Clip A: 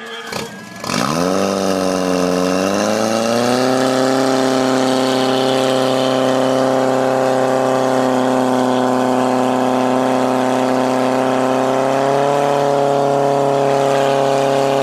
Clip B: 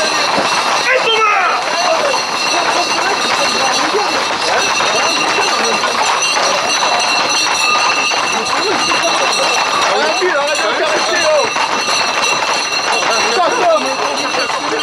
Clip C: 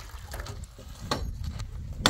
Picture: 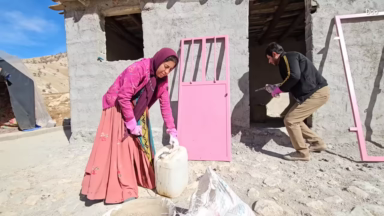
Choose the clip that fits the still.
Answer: C